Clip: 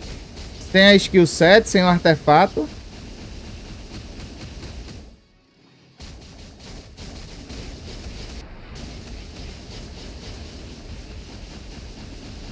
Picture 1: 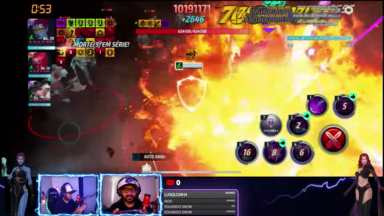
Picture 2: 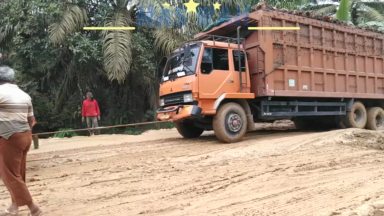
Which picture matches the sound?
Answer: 1